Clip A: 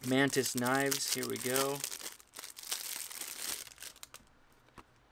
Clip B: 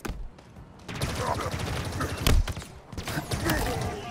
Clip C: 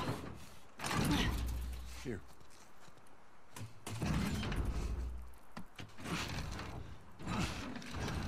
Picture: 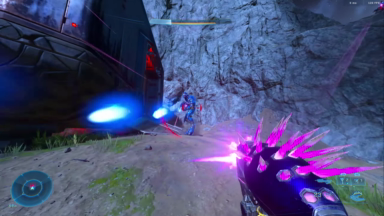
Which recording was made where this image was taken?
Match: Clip B